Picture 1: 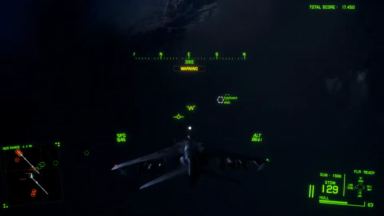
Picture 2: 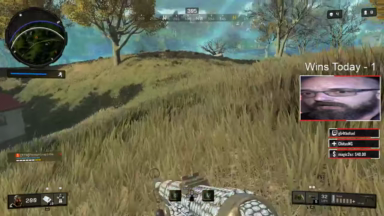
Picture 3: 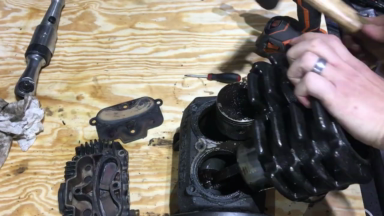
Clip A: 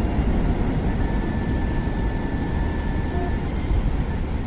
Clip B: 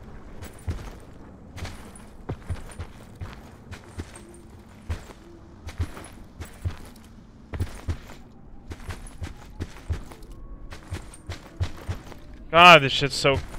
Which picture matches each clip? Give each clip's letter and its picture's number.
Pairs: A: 1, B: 2